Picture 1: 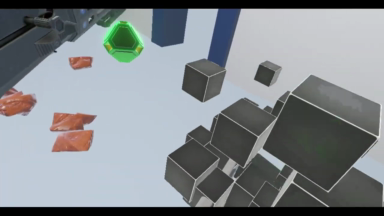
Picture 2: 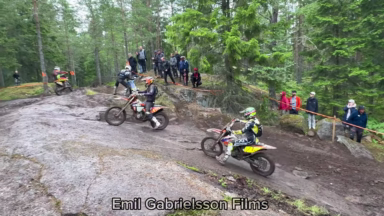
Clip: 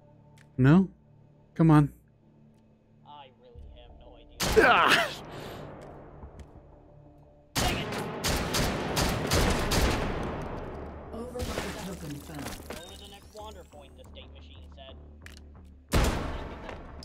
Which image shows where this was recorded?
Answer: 1